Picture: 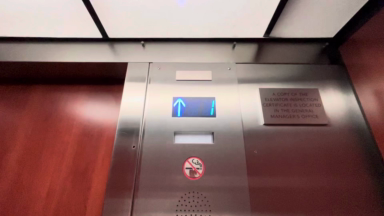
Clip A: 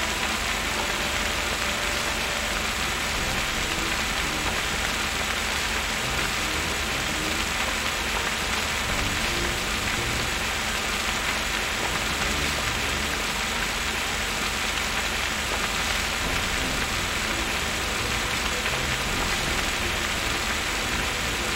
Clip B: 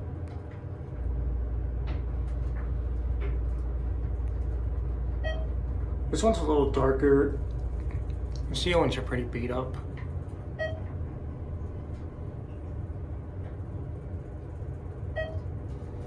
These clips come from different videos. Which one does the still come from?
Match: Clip B